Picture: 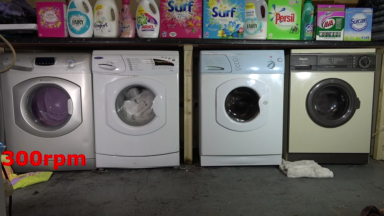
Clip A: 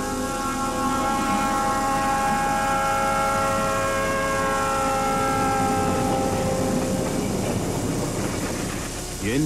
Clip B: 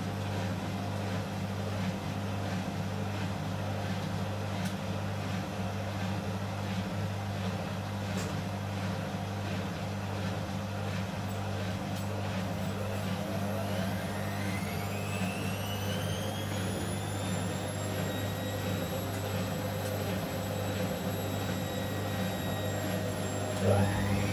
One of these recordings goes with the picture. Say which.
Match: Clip B